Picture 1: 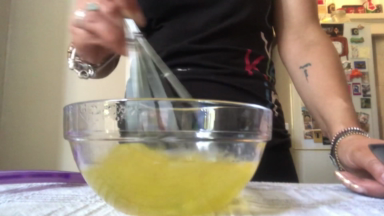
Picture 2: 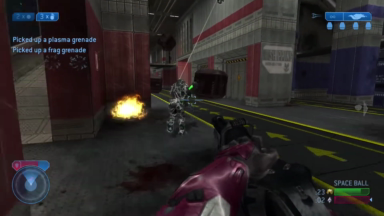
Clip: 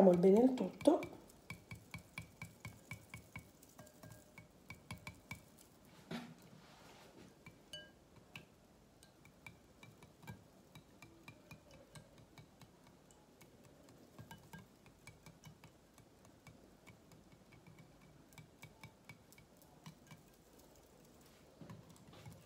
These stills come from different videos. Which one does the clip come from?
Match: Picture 1